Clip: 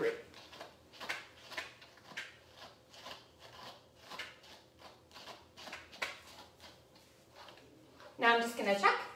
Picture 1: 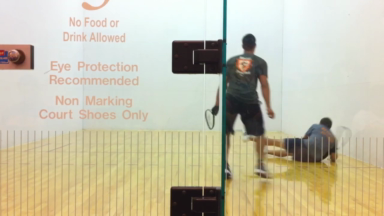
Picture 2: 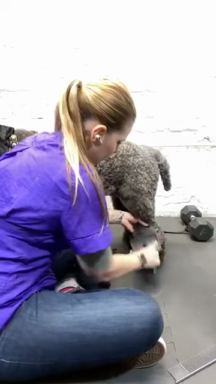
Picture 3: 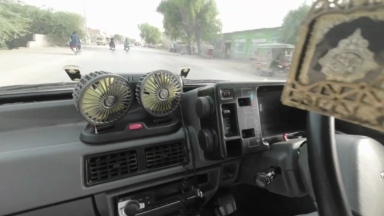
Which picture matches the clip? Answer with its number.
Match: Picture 2